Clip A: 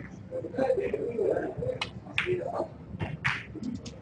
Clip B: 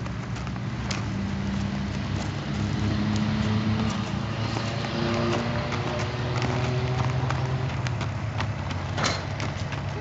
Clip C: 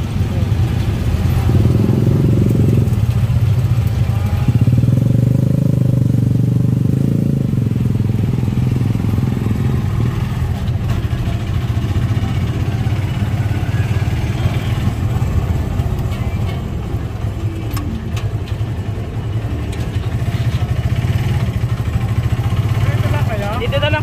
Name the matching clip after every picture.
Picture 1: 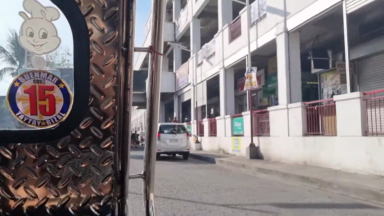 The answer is C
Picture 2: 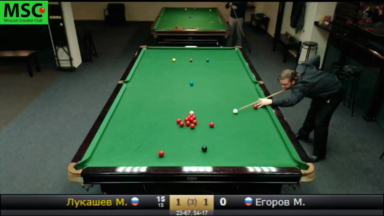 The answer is A